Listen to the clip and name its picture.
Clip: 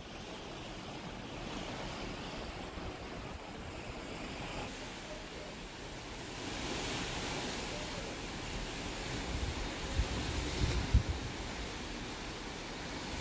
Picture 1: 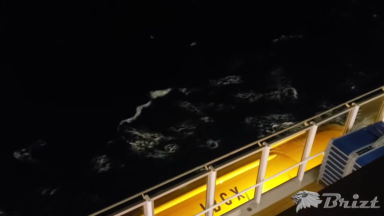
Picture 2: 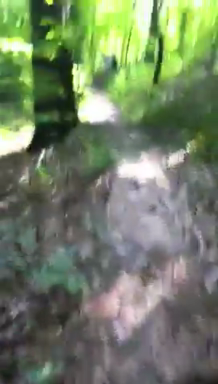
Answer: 1